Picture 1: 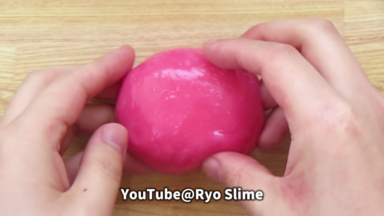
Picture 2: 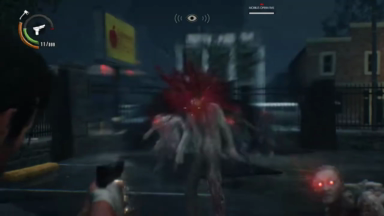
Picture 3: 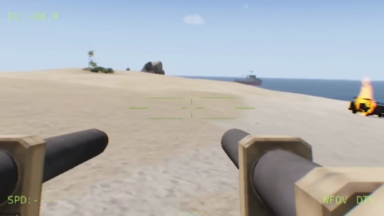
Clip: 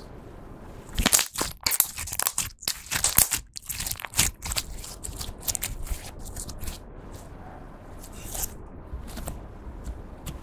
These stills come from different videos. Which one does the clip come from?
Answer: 1